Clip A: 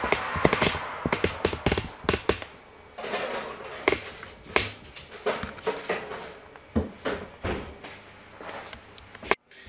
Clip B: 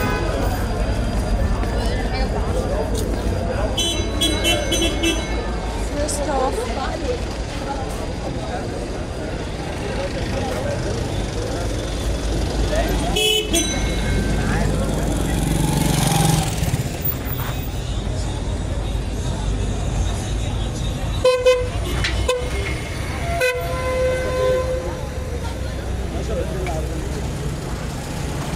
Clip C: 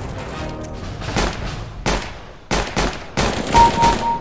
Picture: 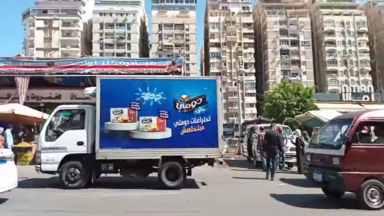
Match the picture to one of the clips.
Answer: B